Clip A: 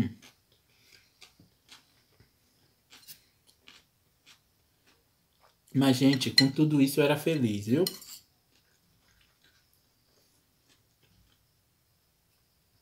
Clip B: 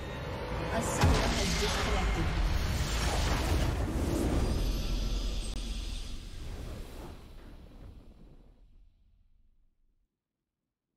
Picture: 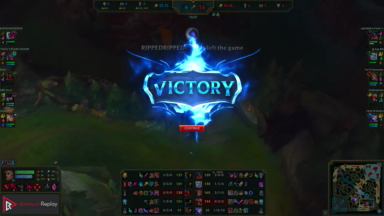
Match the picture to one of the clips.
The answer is B